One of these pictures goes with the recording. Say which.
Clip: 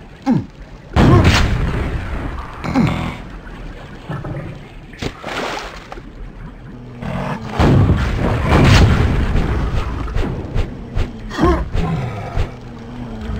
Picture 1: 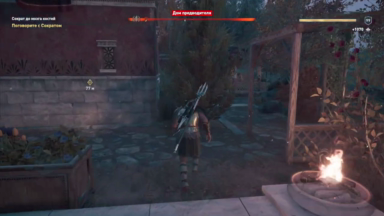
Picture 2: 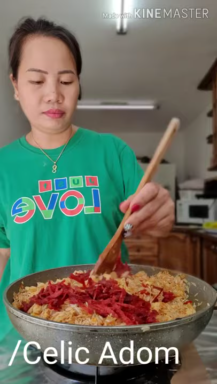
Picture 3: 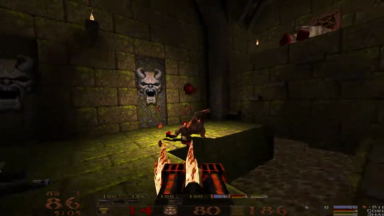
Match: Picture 3